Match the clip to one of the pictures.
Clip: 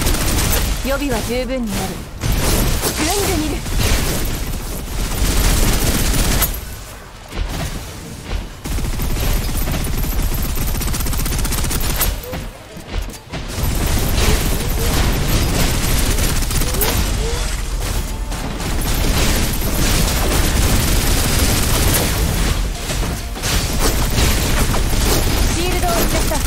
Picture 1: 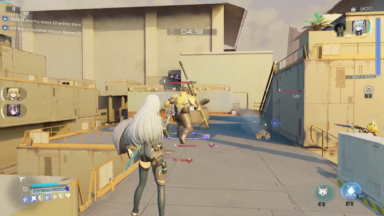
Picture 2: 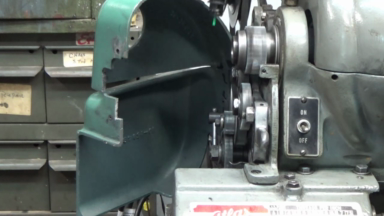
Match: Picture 1